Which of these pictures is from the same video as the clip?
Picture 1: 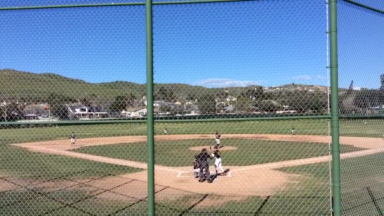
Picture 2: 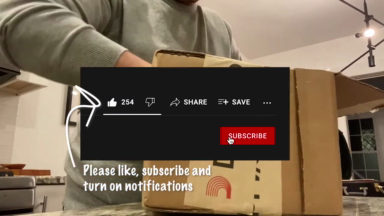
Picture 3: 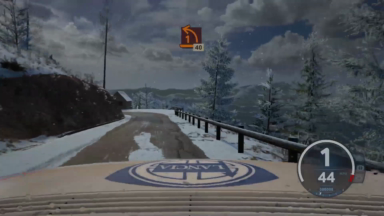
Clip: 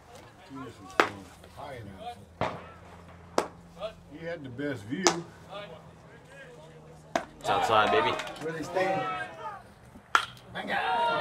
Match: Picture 1